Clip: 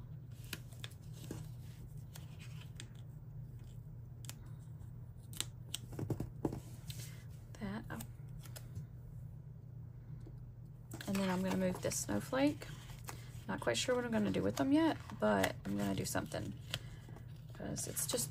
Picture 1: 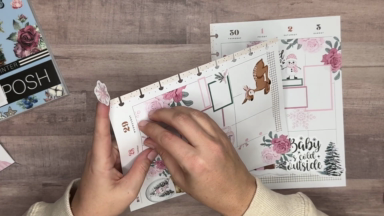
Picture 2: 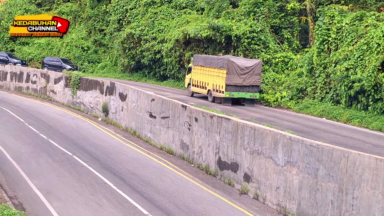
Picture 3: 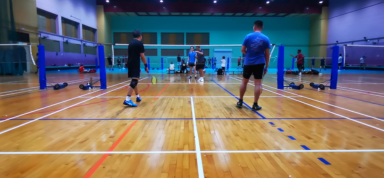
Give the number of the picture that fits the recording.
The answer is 1